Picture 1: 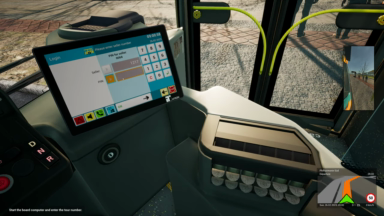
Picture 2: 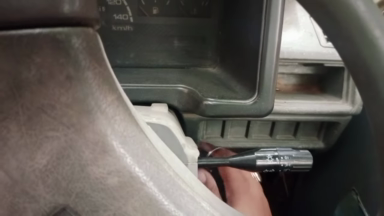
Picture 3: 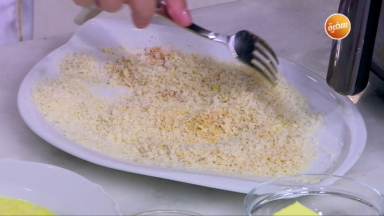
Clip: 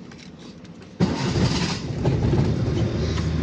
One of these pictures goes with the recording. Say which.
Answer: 2